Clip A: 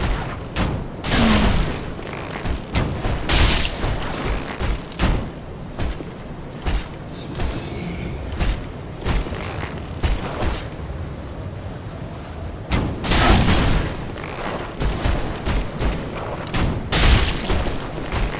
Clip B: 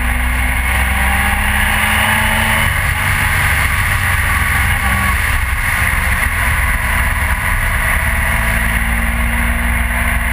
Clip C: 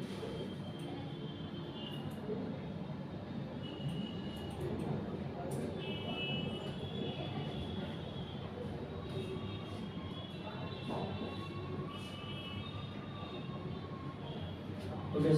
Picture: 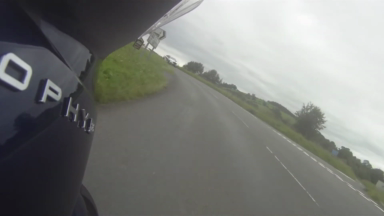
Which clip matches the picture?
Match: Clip B